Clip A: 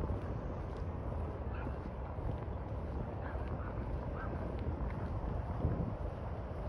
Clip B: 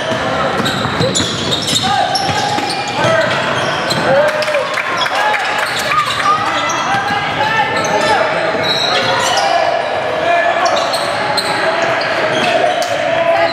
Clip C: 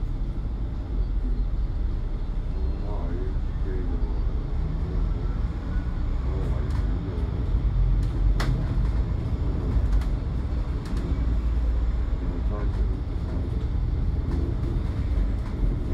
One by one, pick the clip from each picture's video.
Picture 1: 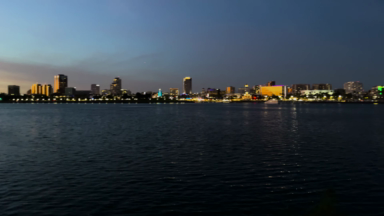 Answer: A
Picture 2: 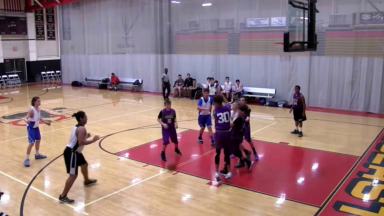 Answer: B